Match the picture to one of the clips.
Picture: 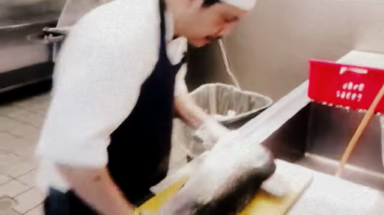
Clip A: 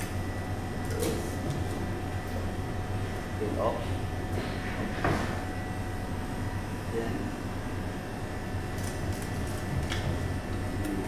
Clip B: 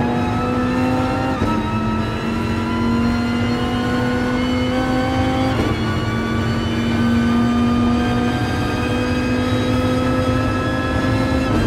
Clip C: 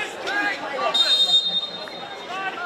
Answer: A